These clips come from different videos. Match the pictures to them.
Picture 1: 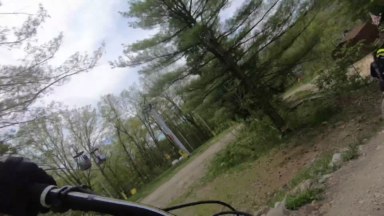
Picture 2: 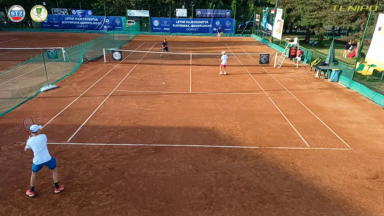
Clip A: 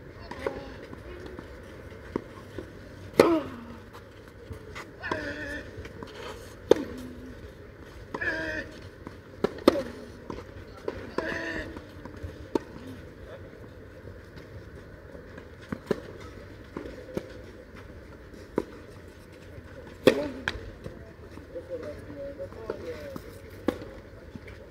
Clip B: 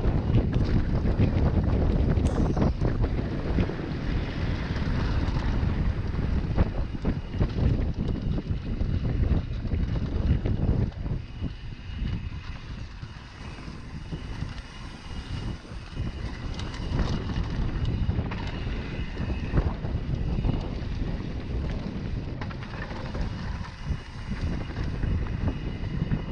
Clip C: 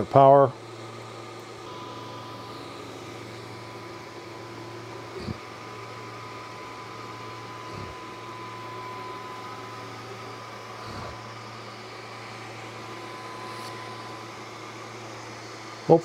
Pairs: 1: B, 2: A